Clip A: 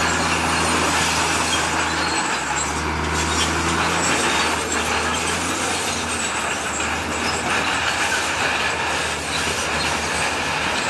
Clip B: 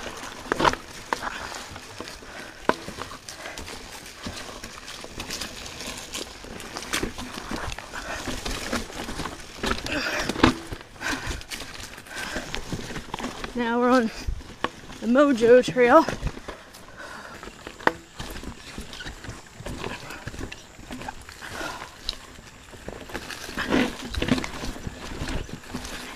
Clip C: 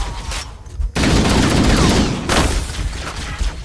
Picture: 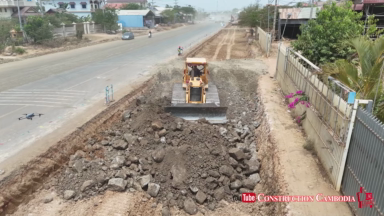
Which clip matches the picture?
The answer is A